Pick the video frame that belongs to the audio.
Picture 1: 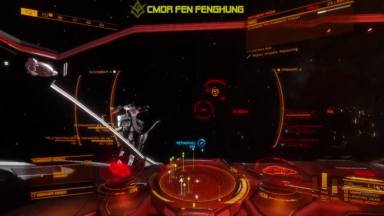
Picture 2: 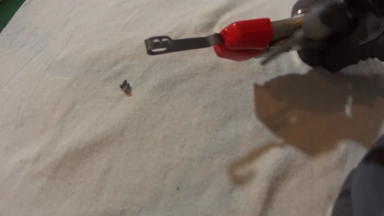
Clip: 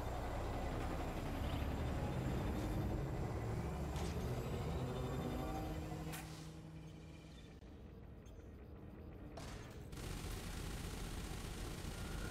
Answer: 1